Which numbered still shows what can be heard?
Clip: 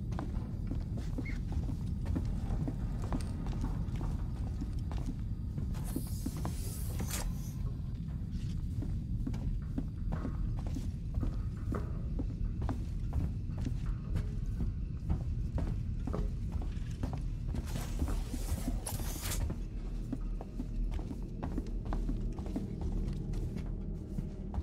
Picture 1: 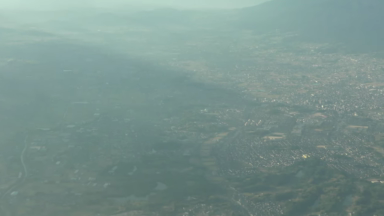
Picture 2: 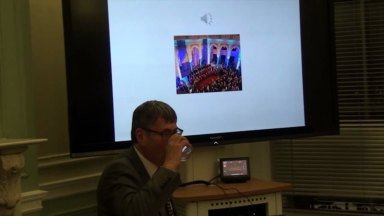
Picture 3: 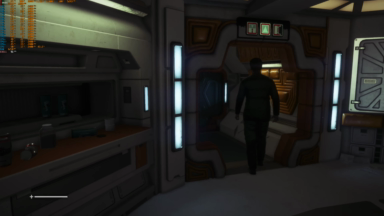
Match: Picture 3